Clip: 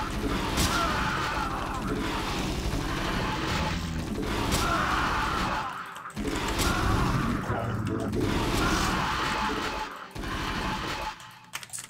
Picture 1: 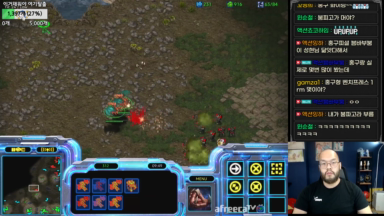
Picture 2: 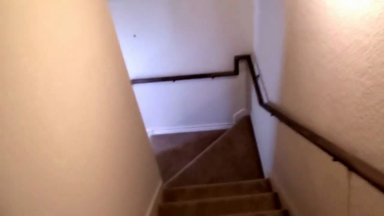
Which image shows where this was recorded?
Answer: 1